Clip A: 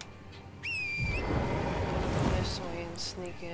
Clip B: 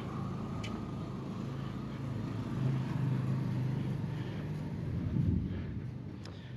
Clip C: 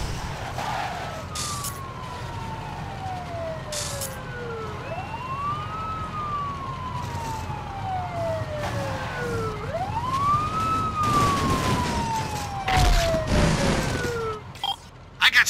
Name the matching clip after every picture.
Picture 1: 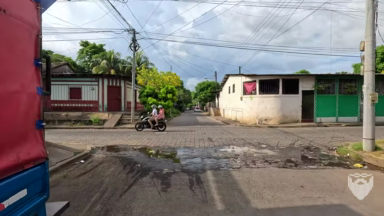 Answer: B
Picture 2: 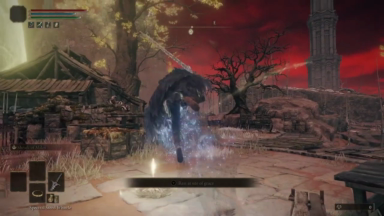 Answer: A